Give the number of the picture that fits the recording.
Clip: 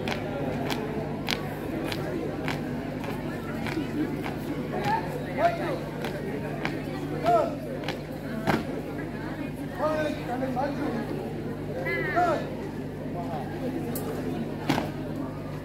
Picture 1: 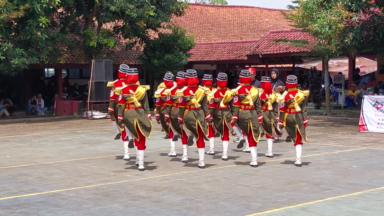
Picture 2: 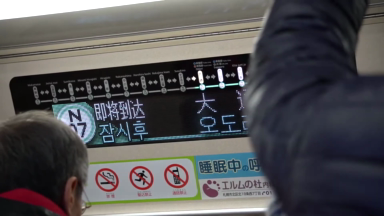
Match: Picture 1